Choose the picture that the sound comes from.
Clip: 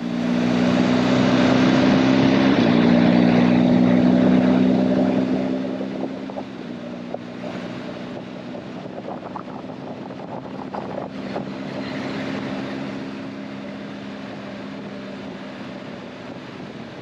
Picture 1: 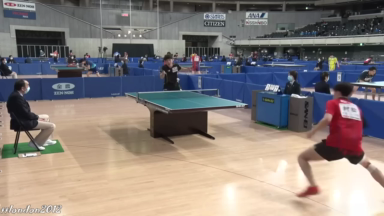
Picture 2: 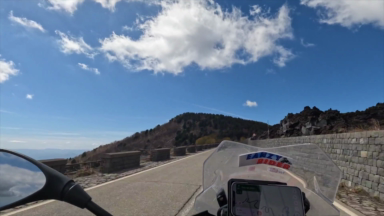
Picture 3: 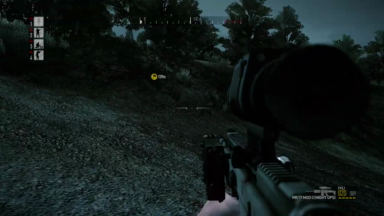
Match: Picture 2